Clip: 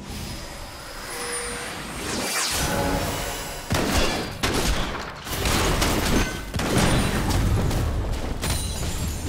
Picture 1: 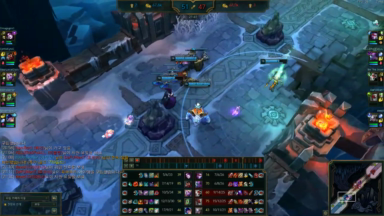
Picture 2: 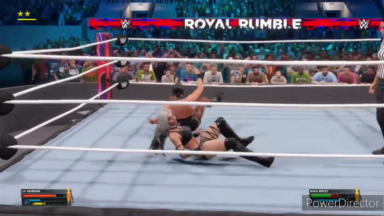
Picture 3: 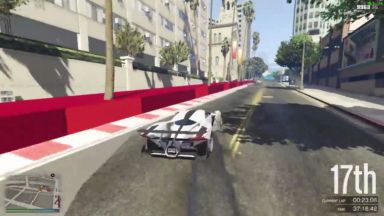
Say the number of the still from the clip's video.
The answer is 1